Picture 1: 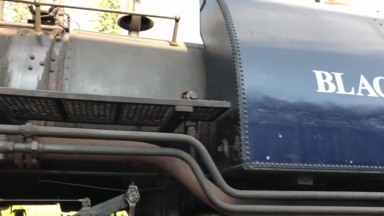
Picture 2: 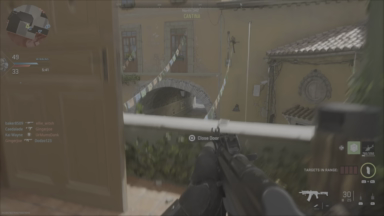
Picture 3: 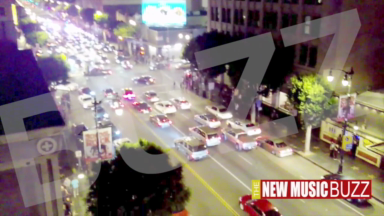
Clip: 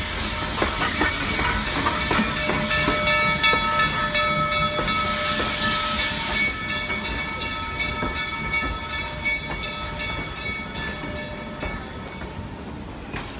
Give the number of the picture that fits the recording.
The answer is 1